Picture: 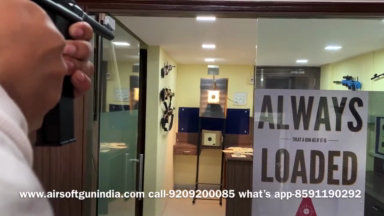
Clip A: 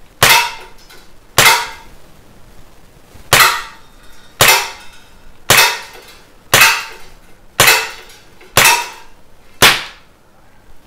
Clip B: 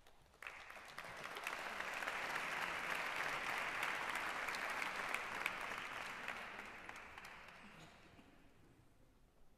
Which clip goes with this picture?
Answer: A